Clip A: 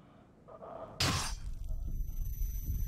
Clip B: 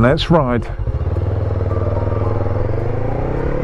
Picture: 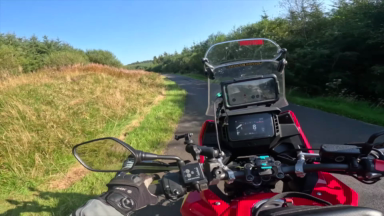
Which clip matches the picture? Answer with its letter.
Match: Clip B